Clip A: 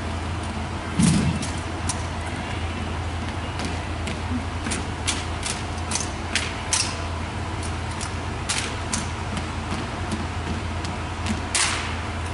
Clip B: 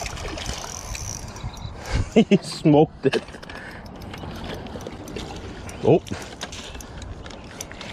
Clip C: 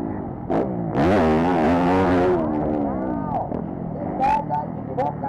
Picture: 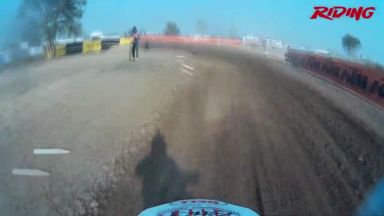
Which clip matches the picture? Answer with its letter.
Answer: C